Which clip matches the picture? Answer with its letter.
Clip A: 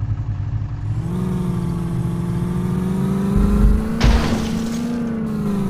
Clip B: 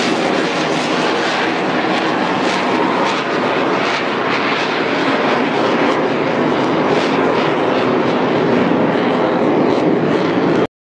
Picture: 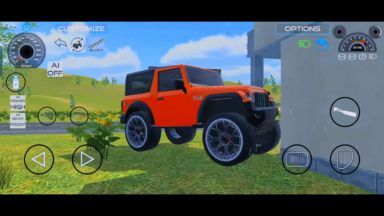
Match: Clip A